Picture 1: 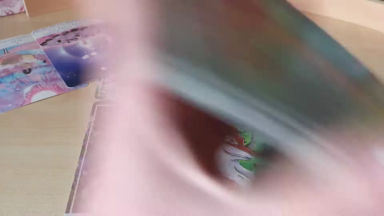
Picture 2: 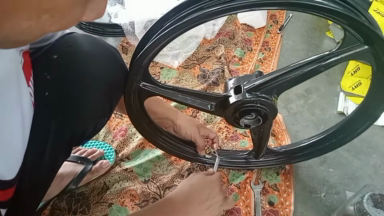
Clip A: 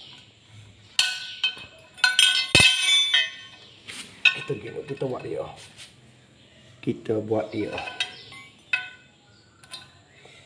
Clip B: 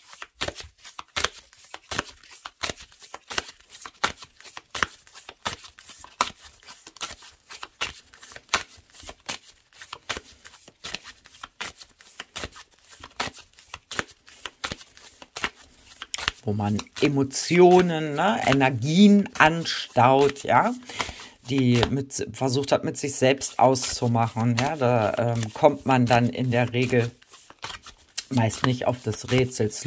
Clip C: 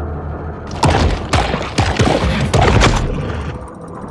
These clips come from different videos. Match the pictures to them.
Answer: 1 B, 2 A